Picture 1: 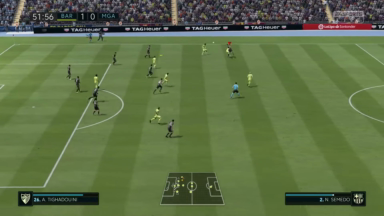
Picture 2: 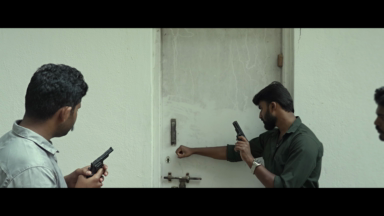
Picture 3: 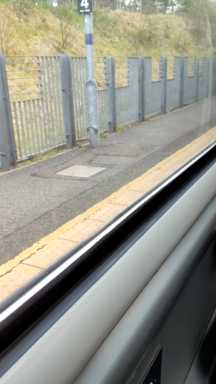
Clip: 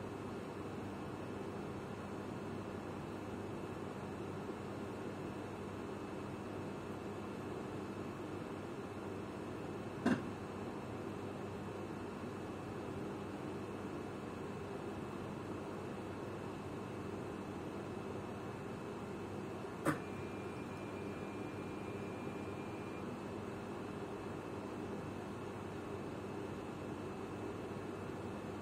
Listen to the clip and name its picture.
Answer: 3